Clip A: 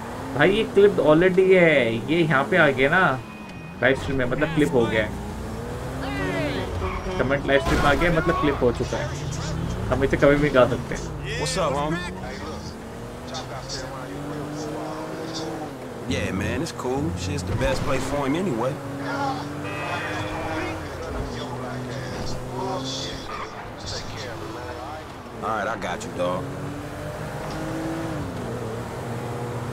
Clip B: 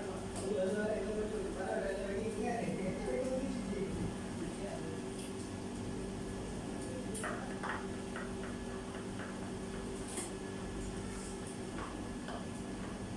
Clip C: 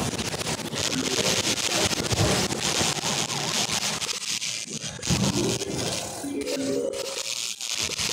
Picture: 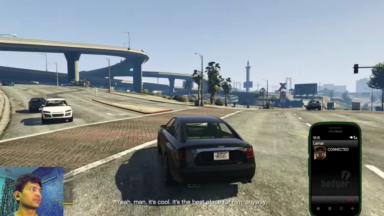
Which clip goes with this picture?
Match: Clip A